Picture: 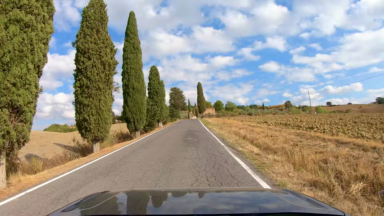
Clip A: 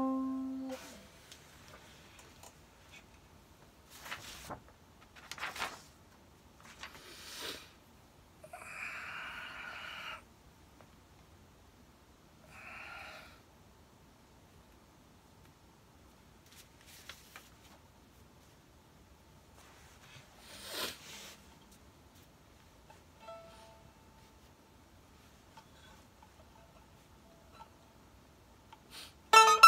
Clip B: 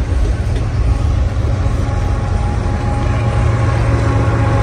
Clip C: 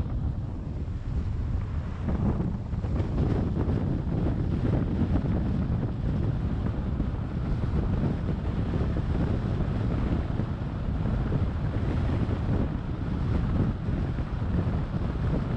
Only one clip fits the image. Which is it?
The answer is C